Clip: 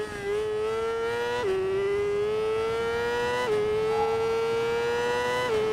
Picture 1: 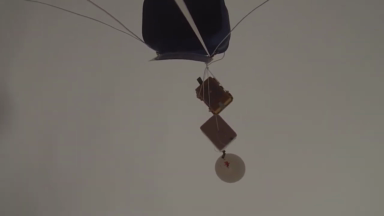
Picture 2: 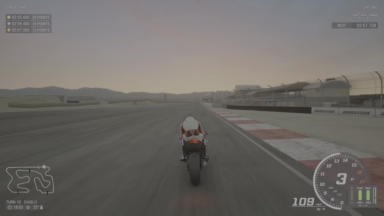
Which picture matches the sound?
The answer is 2